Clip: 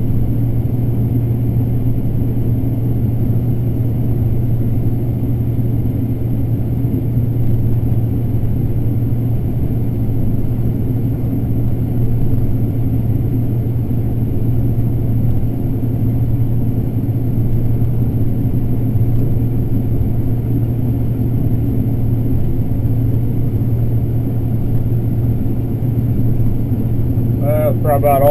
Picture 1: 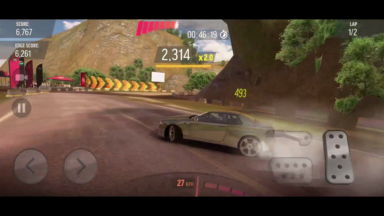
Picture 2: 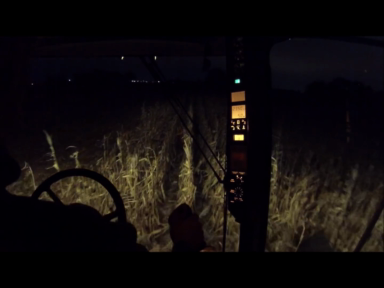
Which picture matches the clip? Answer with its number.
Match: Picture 2